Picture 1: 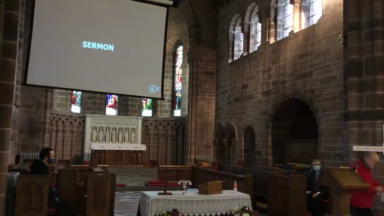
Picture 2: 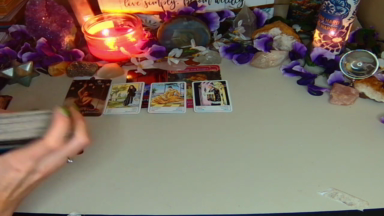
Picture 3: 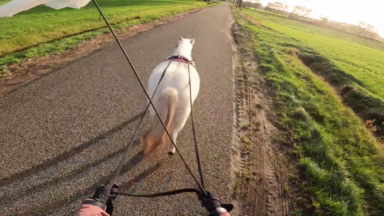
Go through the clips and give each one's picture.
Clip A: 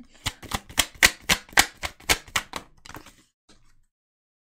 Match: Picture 2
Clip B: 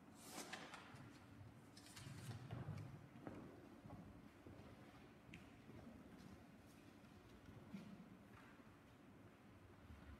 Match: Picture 1